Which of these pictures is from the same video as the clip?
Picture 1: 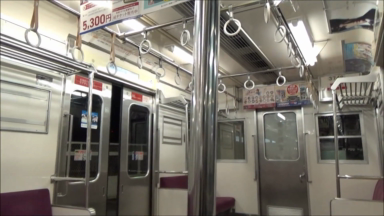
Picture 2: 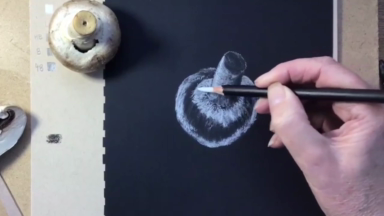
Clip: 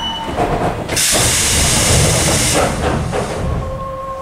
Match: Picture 1